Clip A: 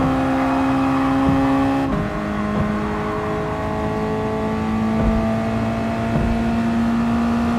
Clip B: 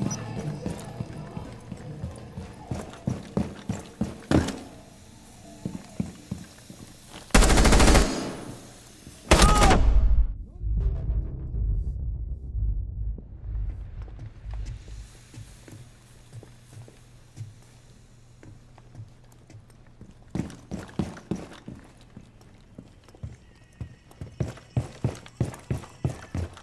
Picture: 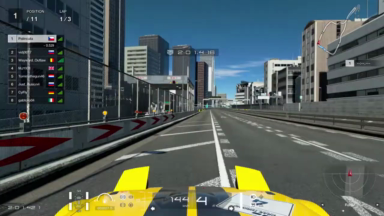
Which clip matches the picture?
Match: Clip A